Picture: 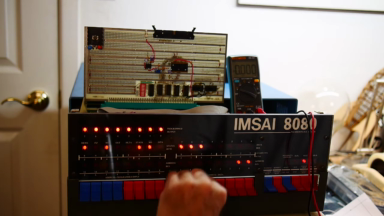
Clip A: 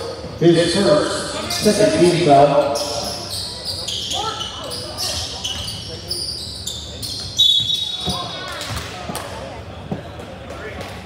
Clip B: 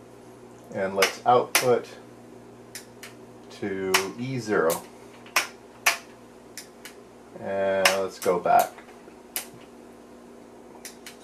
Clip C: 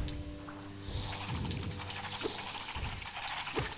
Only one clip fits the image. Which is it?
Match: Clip B